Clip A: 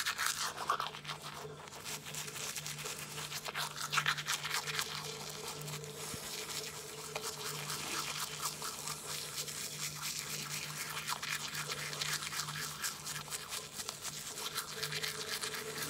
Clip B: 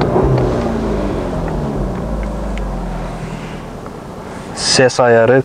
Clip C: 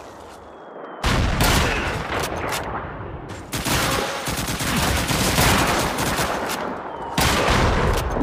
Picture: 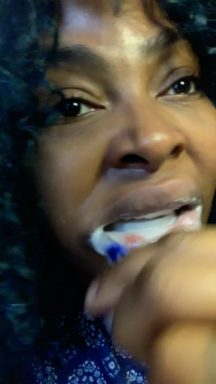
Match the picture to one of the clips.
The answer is A